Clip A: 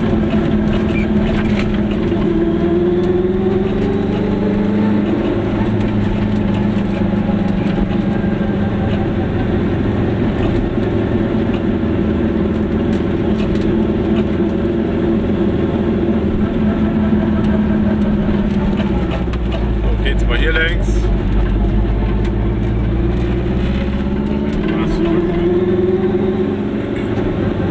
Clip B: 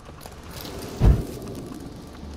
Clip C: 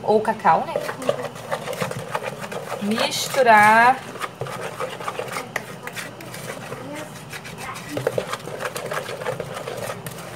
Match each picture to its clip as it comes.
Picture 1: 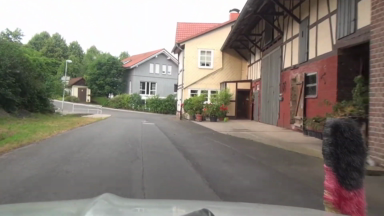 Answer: A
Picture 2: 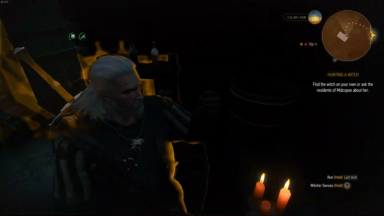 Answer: B